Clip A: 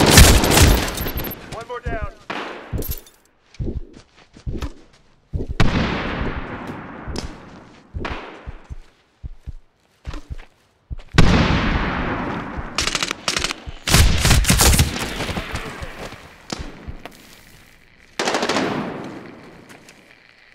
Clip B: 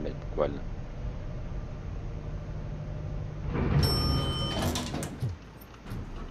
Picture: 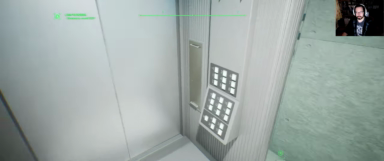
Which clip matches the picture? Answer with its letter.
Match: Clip B